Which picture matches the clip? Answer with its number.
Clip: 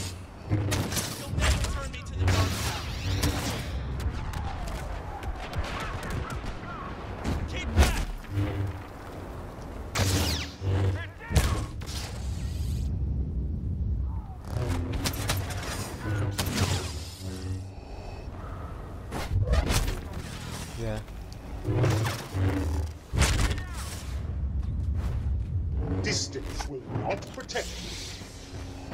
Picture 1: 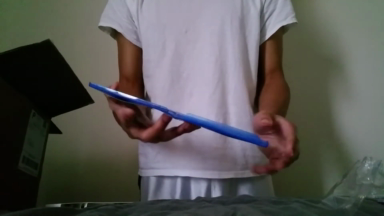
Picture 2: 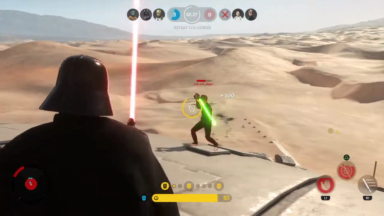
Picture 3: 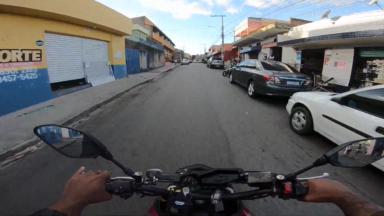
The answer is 2